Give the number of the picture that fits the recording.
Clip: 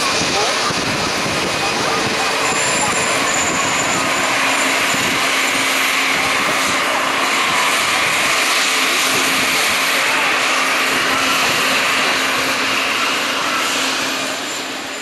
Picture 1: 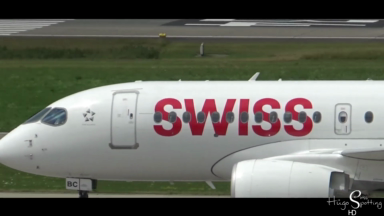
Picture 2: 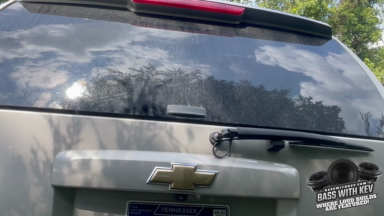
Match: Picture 1